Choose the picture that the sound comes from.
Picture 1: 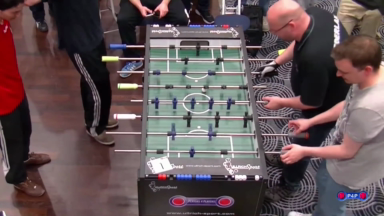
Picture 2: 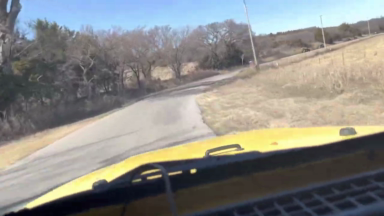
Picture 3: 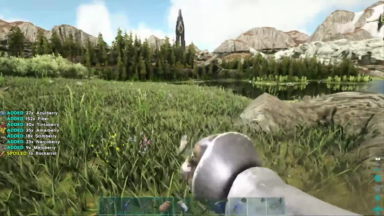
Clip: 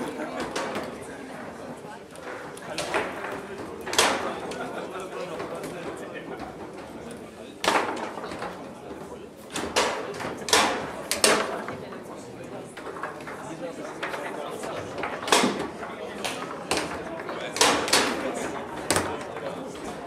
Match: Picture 1